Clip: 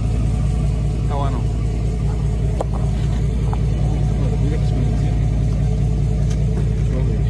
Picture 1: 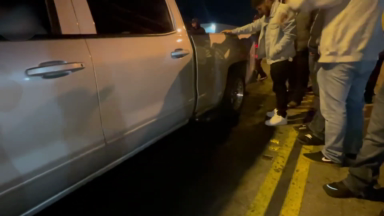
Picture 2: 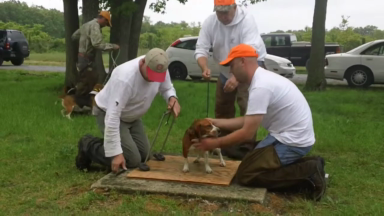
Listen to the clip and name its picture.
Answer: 1